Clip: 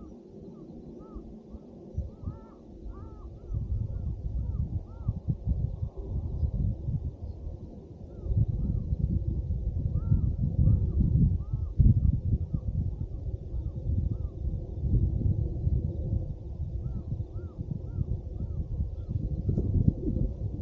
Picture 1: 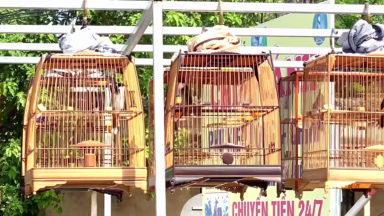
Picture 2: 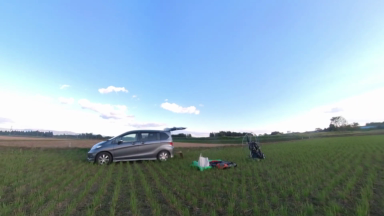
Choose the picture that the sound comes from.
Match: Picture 2